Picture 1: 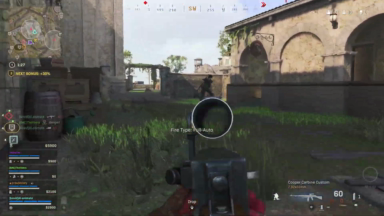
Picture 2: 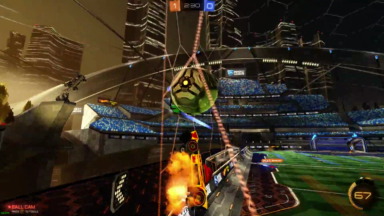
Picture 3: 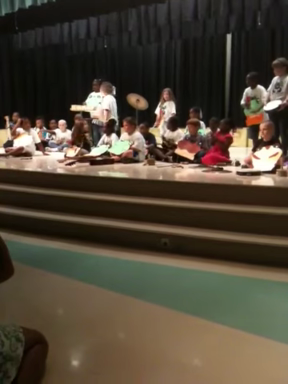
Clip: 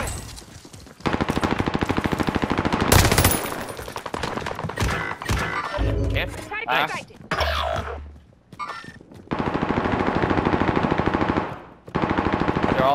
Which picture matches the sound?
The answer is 1